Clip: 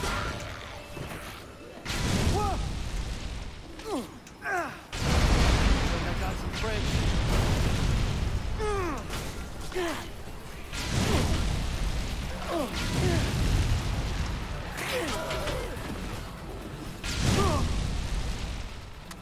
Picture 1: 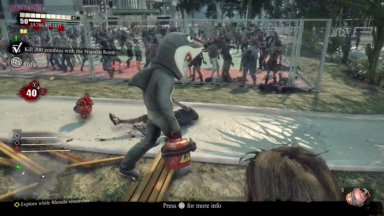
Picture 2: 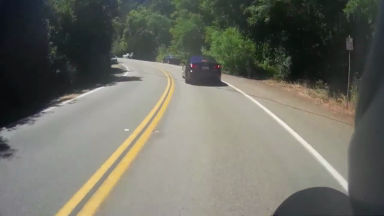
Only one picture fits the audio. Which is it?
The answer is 1